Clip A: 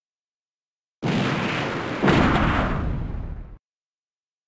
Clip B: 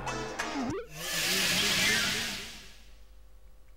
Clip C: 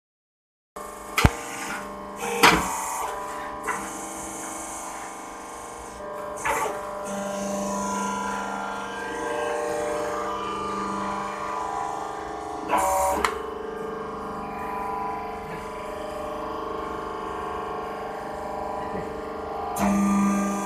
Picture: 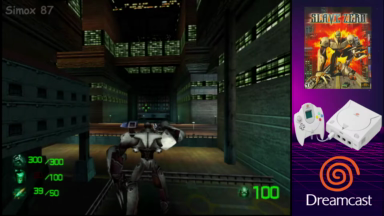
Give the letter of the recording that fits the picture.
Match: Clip A